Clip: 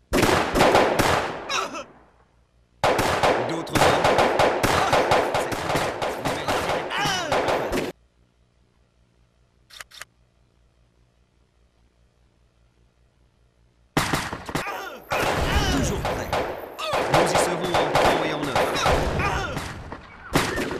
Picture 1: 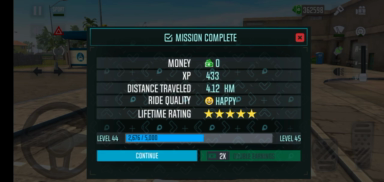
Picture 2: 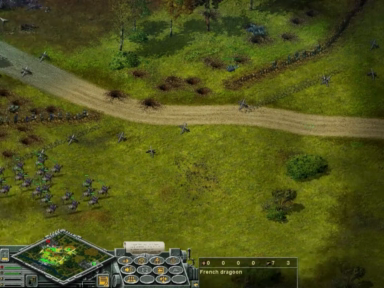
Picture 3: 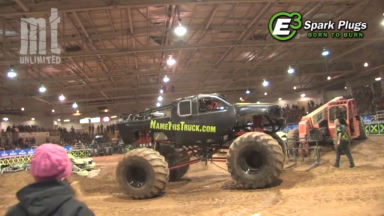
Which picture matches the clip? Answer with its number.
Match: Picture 2